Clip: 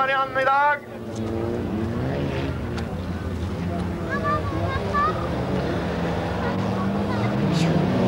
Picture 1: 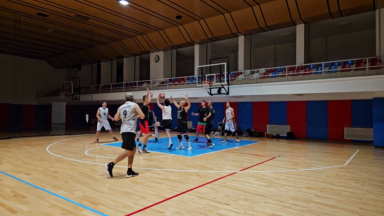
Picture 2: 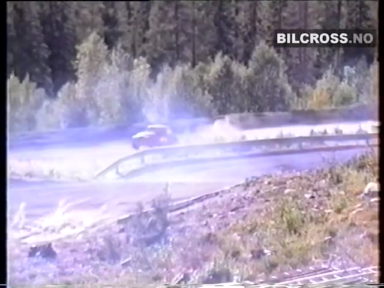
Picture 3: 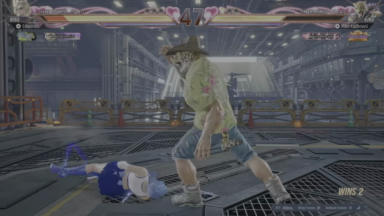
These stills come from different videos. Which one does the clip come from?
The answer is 2